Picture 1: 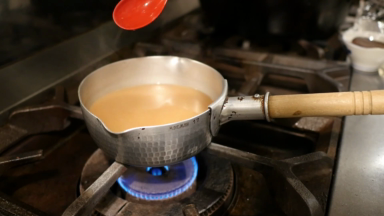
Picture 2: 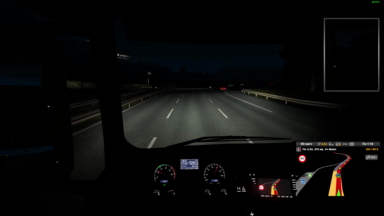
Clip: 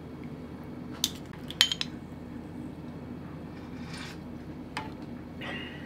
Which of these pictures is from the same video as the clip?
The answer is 1